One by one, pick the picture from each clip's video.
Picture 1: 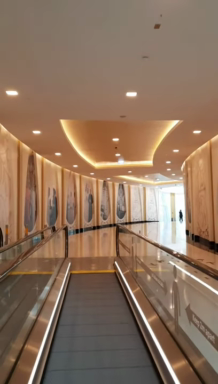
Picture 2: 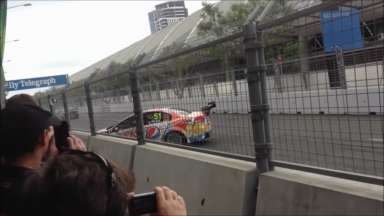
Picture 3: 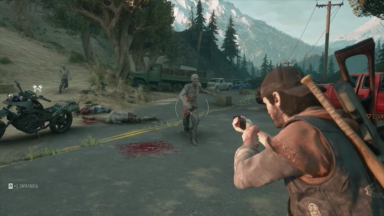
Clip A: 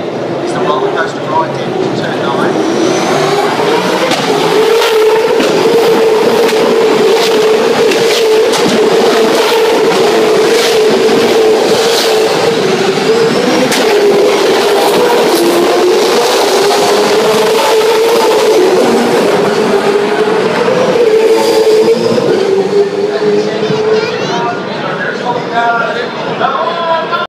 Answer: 2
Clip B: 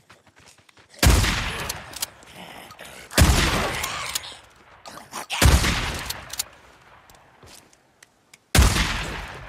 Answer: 3